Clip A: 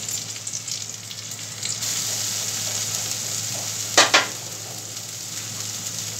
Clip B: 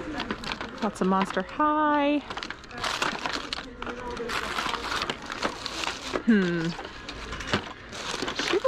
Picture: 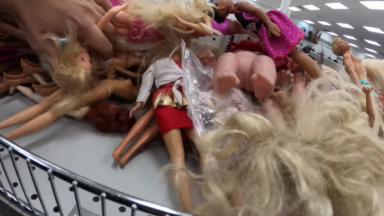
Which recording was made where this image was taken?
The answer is B